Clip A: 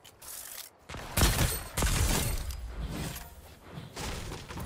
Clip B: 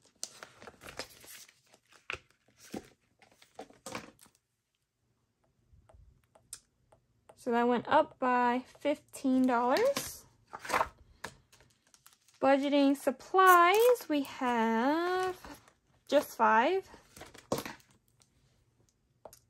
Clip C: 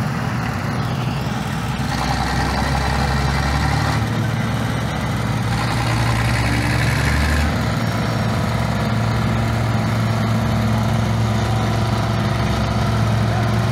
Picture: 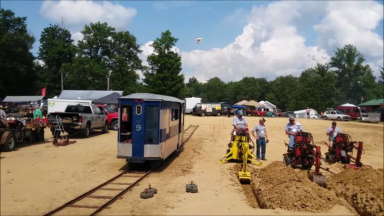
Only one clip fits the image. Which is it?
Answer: C